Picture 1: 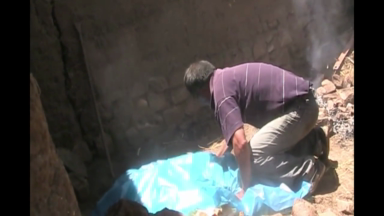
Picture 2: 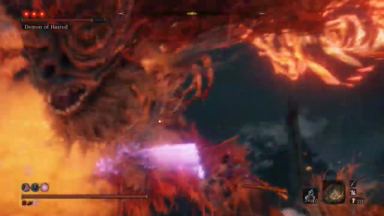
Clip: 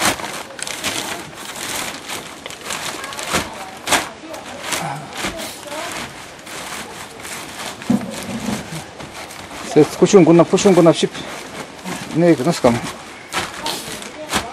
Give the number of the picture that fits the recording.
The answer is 1